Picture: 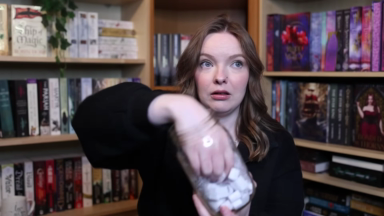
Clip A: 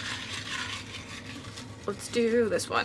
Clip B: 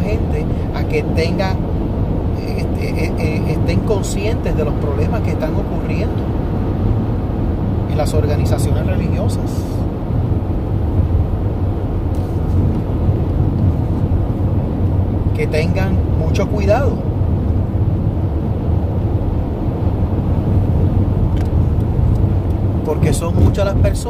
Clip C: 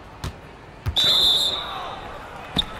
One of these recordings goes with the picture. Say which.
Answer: A